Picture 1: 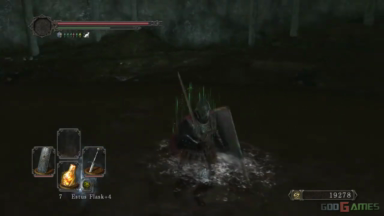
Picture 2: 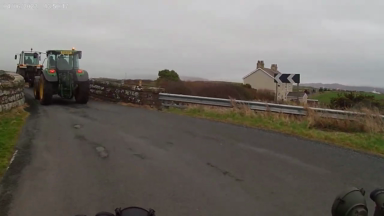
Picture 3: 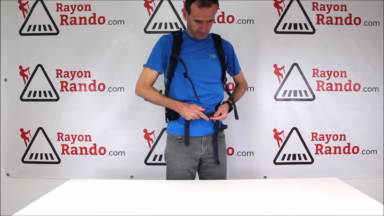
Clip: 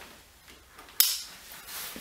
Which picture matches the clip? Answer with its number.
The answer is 3